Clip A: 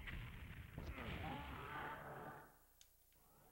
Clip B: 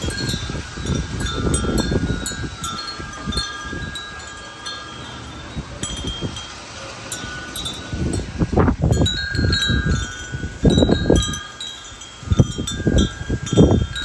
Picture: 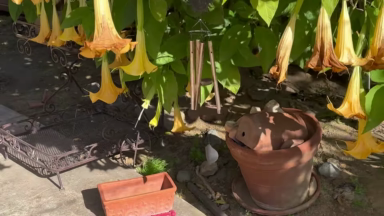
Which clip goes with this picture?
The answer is B